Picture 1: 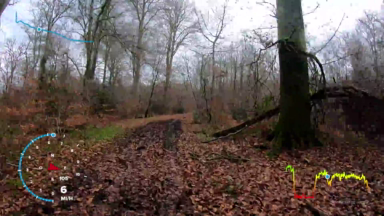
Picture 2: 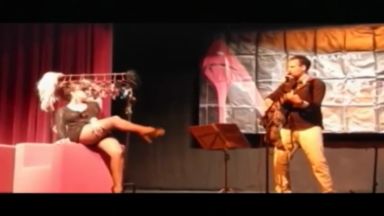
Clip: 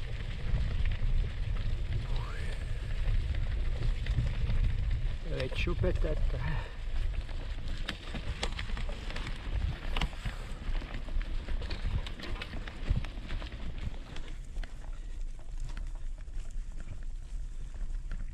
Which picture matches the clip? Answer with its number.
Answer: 1